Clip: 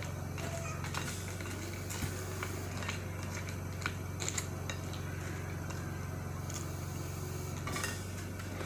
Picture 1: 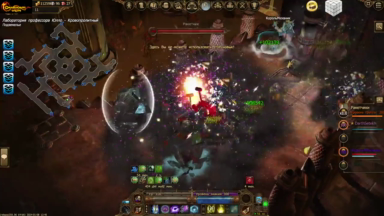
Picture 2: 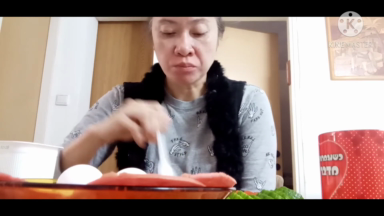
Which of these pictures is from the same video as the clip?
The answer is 2